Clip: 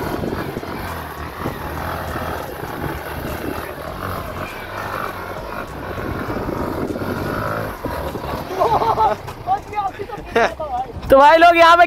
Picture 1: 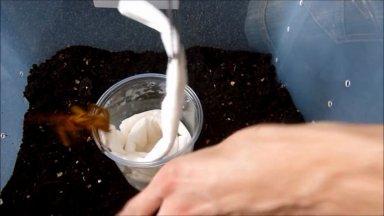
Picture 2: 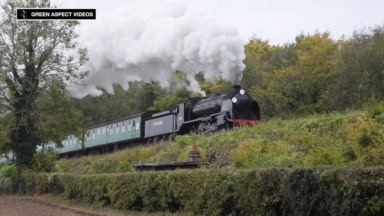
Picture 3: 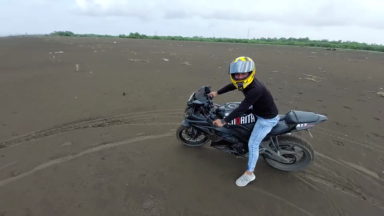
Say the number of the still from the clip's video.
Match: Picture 3